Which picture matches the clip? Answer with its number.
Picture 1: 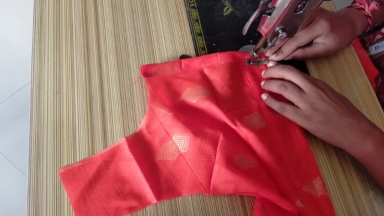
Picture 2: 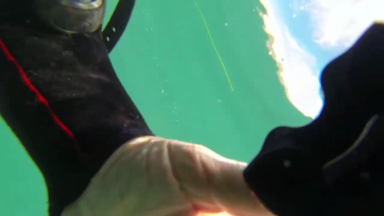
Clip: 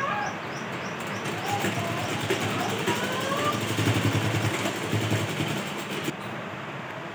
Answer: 1